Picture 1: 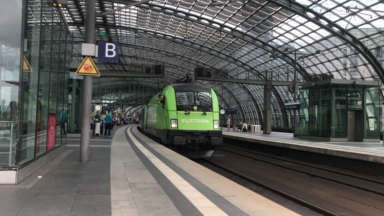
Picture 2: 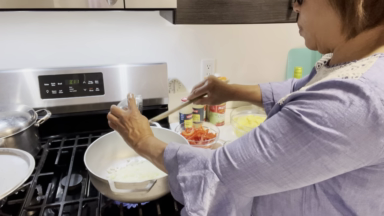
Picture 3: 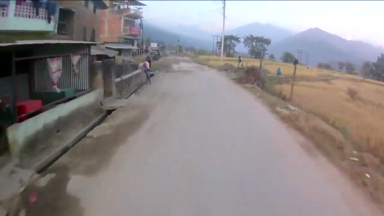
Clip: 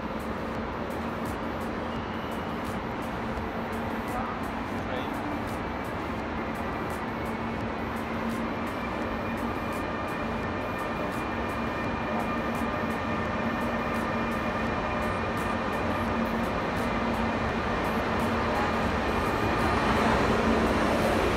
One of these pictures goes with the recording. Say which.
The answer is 1